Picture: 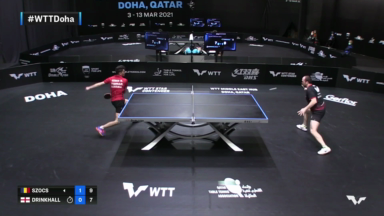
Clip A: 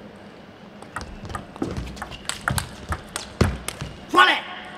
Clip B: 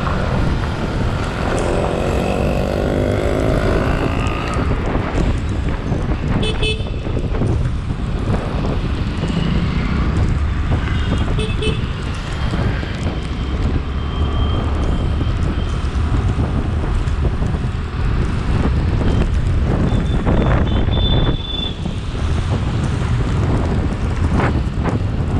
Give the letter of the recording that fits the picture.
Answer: A